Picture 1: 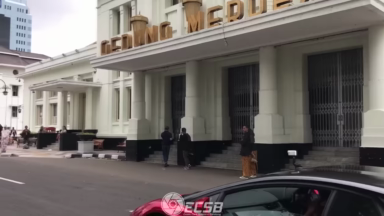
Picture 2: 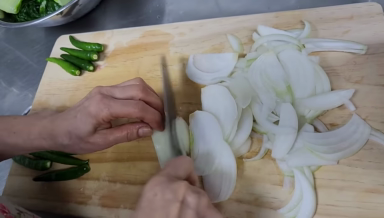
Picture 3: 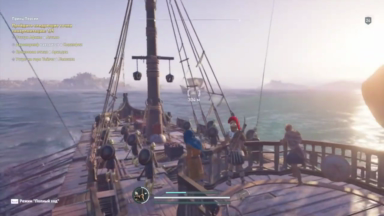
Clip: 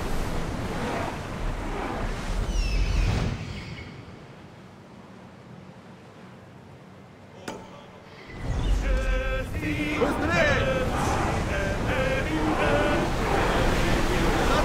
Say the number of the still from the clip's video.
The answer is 3